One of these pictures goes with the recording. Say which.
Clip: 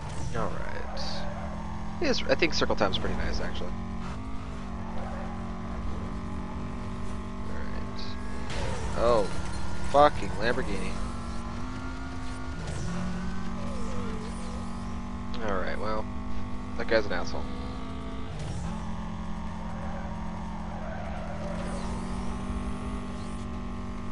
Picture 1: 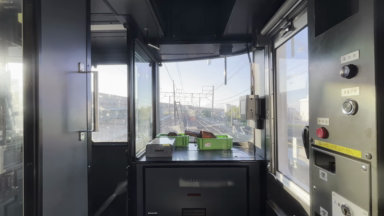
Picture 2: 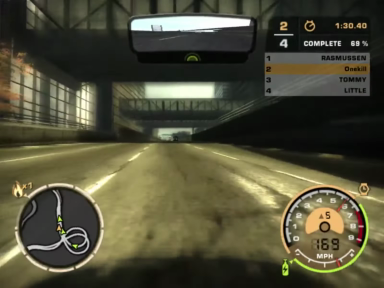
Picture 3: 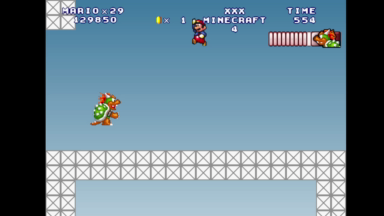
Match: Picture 2